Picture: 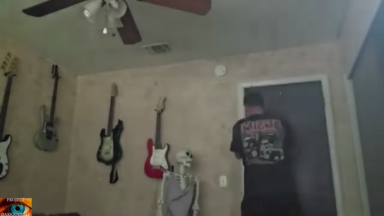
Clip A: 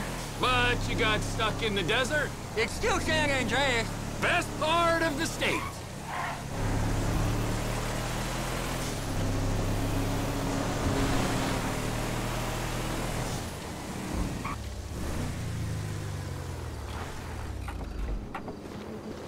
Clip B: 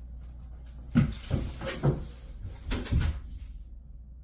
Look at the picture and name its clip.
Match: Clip B